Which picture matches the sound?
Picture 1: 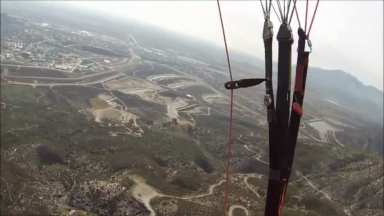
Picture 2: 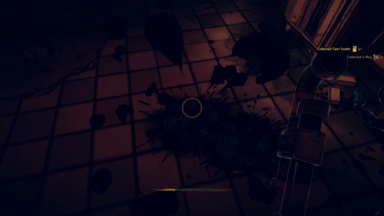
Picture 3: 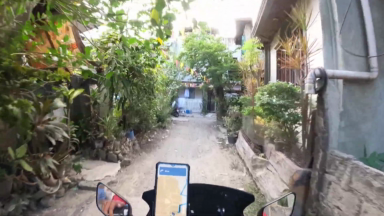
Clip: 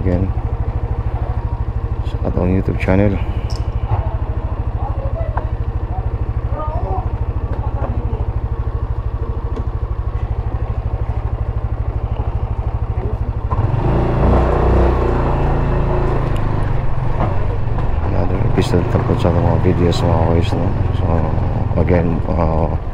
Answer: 3